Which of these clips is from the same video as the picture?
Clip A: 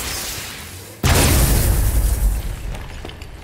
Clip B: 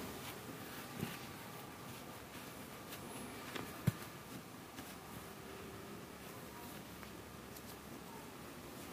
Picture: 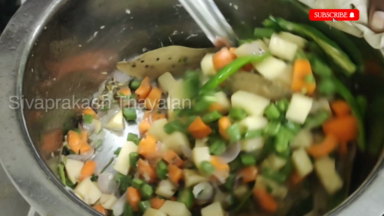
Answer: B